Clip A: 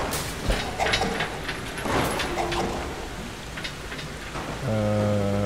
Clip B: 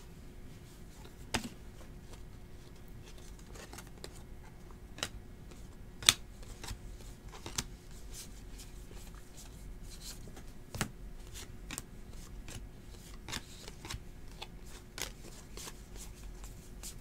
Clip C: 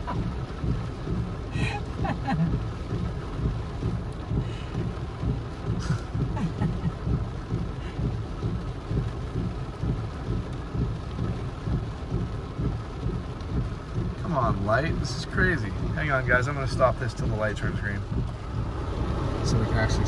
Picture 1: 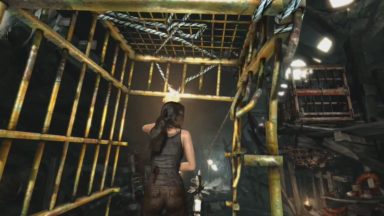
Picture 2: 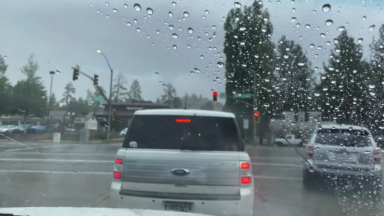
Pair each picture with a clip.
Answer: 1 A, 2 C